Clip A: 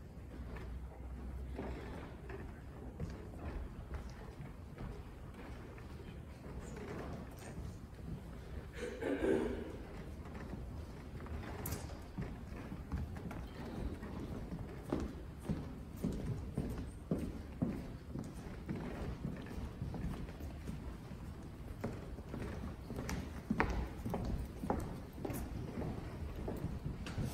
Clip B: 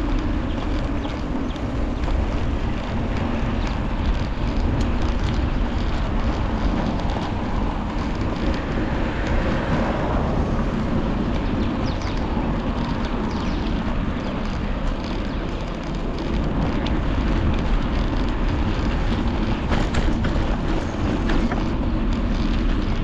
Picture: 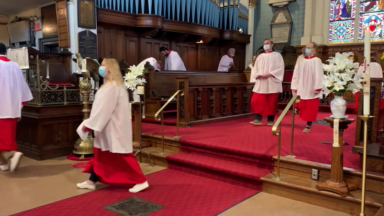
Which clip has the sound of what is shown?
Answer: A